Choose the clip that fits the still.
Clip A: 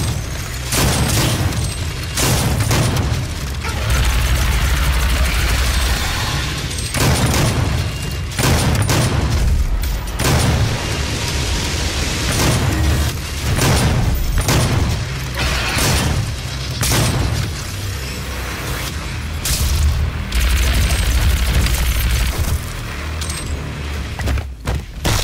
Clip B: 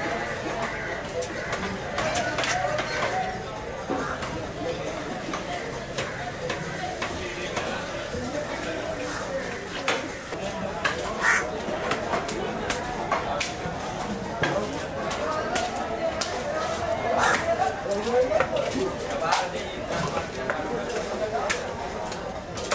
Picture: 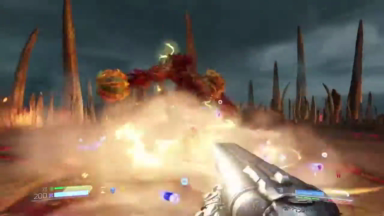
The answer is A